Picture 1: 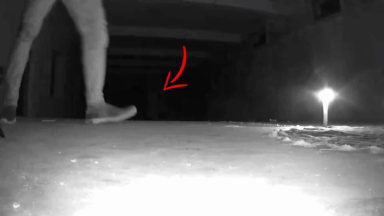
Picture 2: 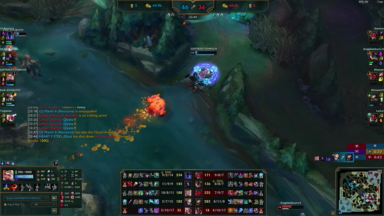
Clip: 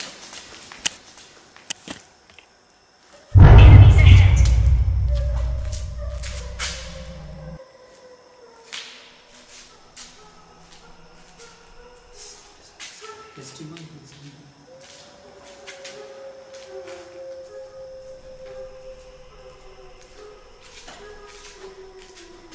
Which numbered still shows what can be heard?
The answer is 1